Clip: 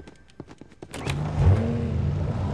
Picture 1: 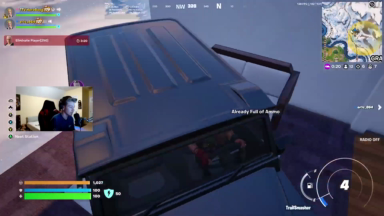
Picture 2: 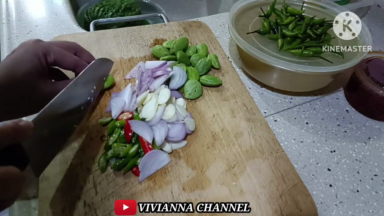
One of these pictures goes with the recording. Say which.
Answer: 1